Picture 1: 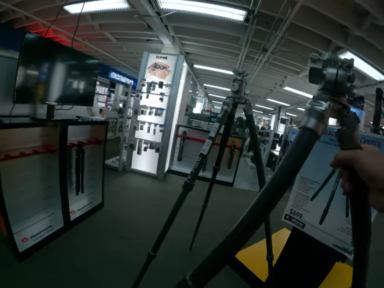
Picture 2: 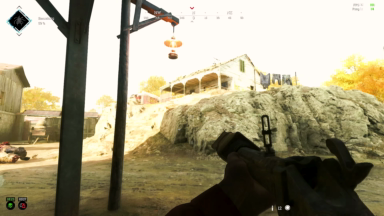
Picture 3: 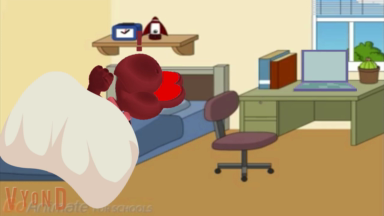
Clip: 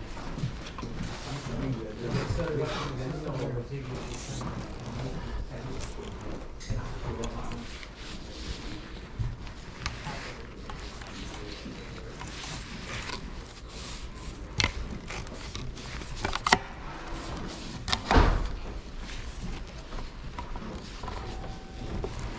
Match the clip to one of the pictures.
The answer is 1